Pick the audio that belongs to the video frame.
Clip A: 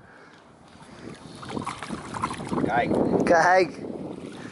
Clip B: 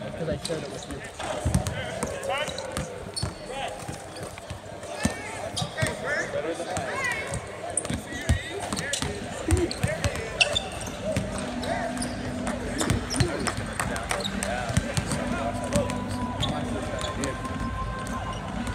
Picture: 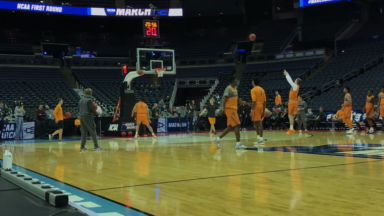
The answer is B